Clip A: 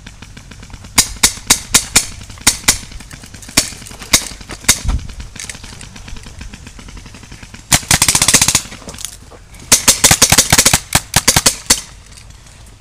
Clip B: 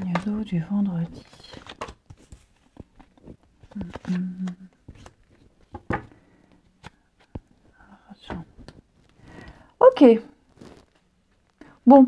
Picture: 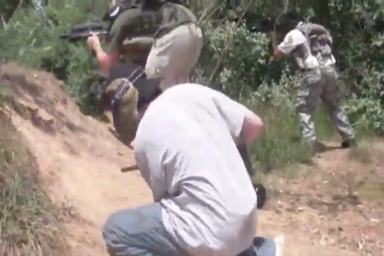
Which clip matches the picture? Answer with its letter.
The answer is A